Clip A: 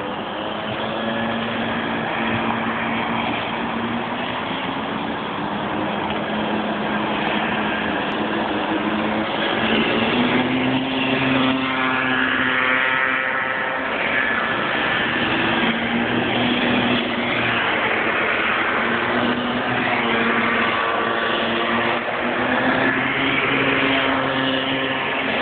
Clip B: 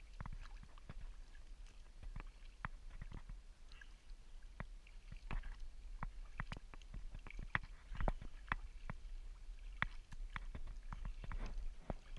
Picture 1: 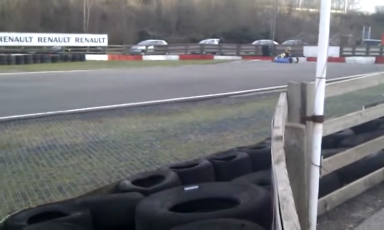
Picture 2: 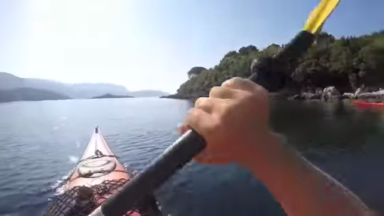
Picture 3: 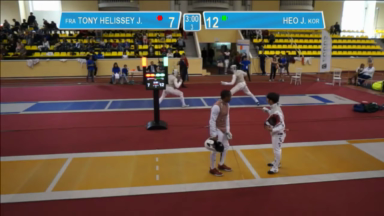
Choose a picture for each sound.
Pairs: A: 1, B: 2